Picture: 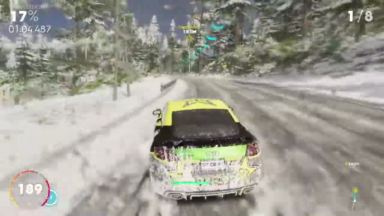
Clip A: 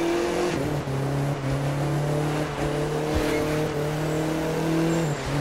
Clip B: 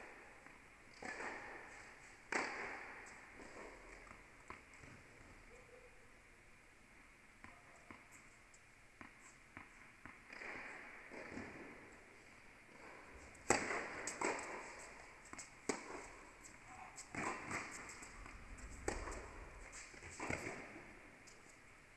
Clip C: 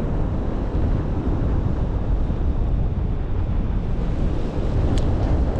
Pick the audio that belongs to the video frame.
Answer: A